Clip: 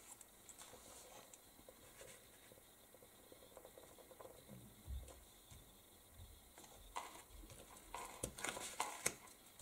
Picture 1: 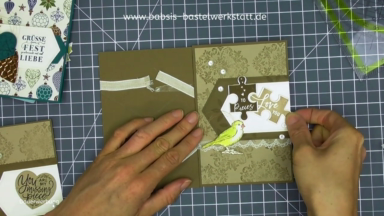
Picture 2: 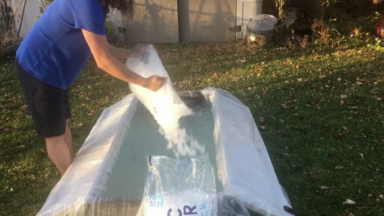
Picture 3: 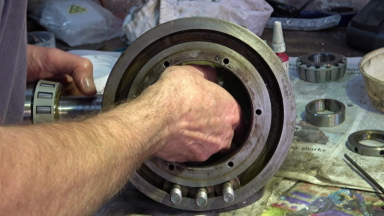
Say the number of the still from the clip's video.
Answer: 1